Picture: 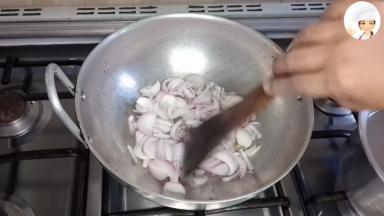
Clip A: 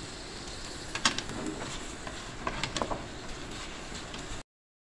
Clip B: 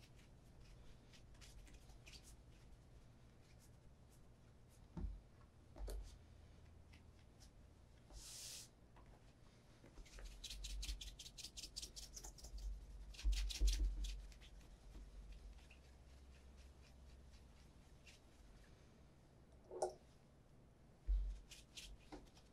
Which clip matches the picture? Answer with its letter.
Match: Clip A